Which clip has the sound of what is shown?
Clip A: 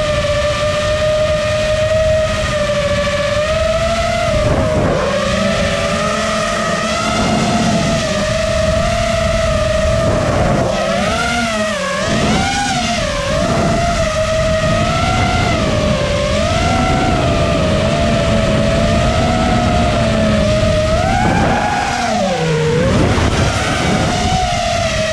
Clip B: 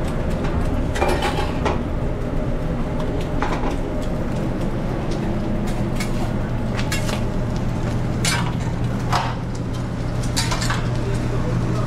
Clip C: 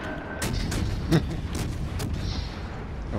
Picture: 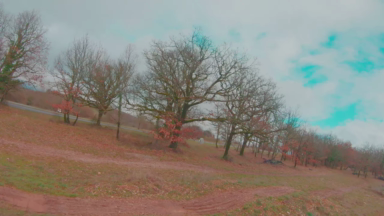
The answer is A